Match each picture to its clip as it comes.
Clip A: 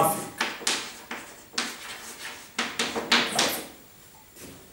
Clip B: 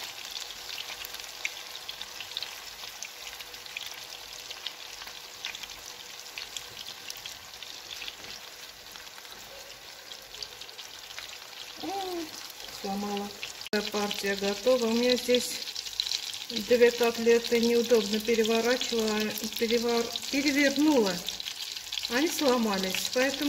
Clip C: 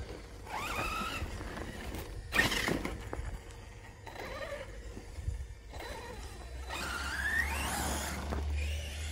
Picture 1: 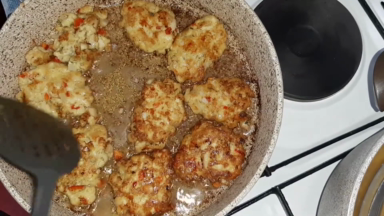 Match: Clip B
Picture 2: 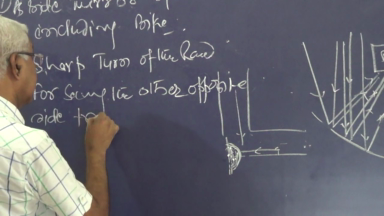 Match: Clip A